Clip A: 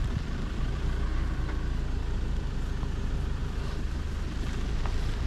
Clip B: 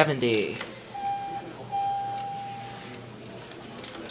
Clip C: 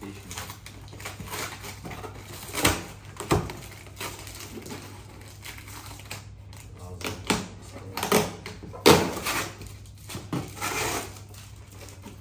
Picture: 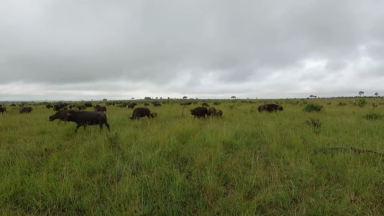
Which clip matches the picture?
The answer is A